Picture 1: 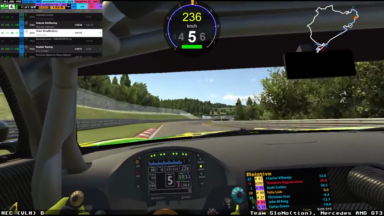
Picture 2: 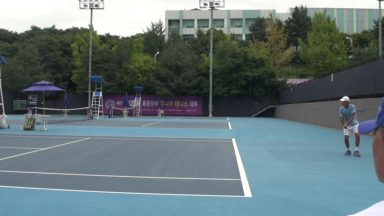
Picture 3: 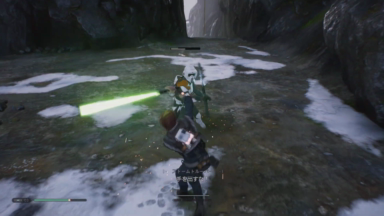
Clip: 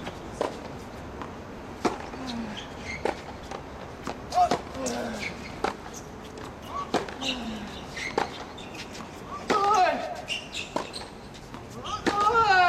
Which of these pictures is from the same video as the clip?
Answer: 2